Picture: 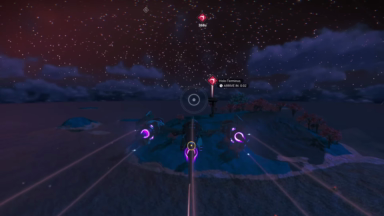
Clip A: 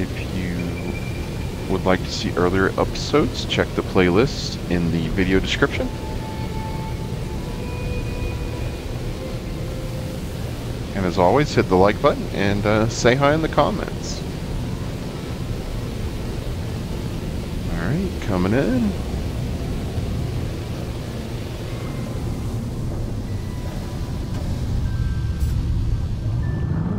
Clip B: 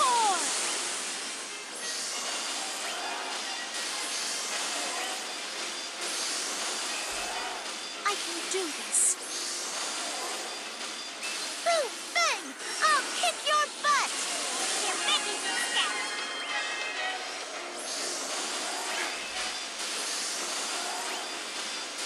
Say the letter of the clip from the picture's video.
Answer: A